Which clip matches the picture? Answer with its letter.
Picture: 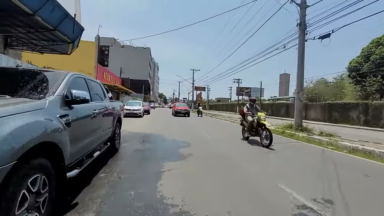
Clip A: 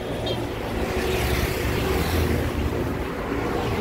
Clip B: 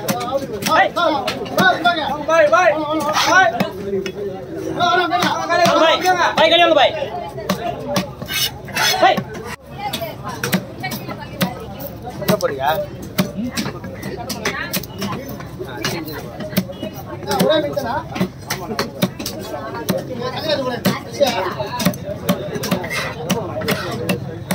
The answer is A